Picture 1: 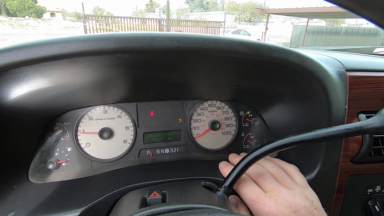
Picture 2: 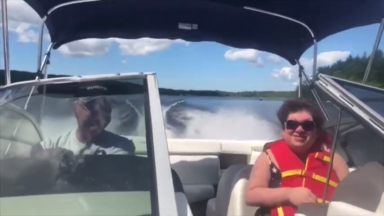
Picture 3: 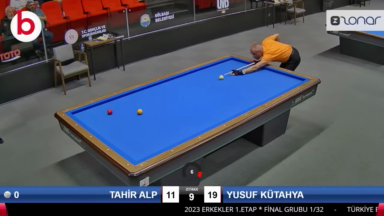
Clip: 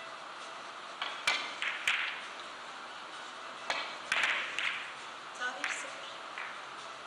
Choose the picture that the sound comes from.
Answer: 3